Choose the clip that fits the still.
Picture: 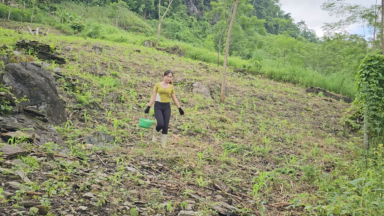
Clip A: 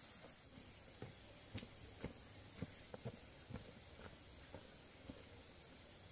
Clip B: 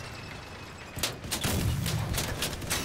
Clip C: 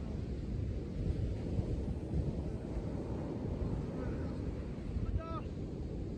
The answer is A